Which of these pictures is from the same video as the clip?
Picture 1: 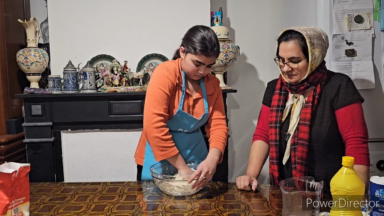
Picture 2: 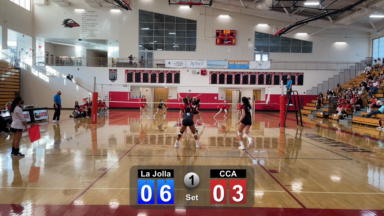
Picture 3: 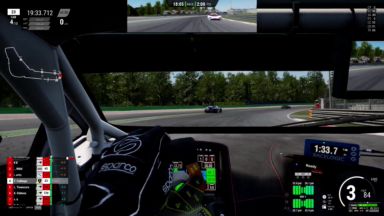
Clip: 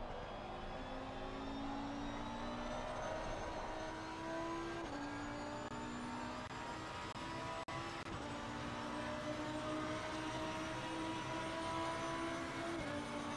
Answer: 3